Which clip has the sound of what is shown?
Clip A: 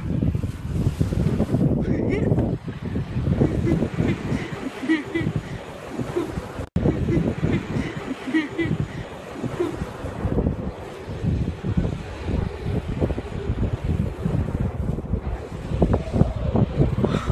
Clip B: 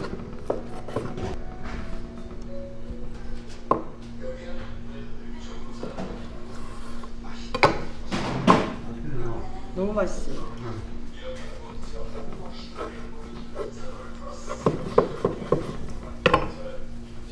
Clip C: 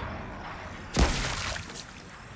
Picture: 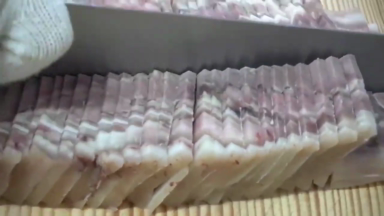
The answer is B